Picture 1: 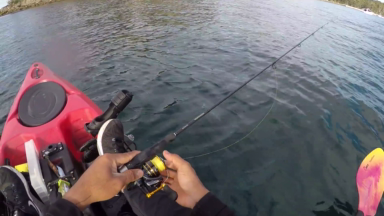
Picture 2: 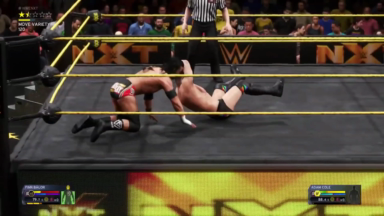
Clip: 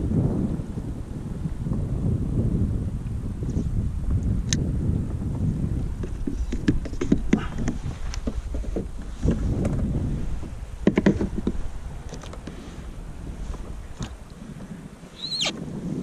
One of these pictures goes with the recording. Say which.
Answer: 1